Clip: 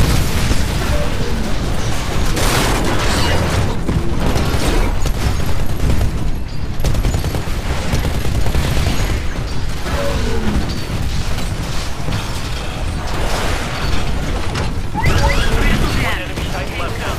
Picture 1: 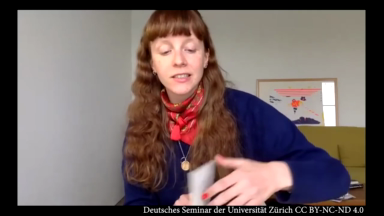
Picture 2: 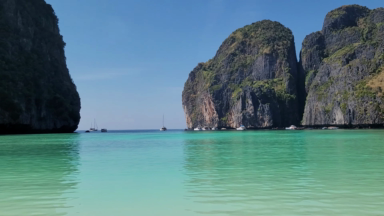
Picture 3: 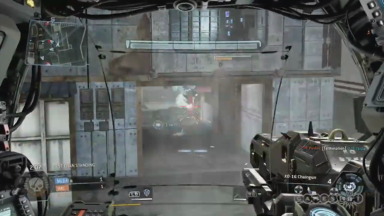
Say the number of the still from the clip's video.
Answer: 3